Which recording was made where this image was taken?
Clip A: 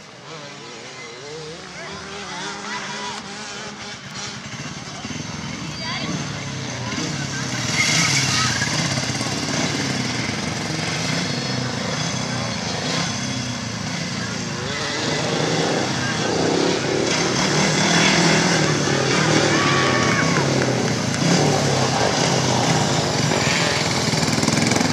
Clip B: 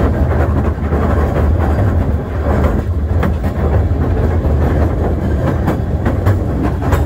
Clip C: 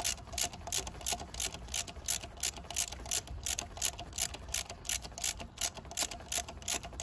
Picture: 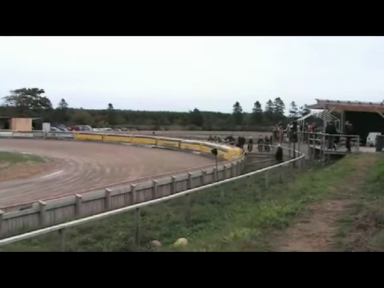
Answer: A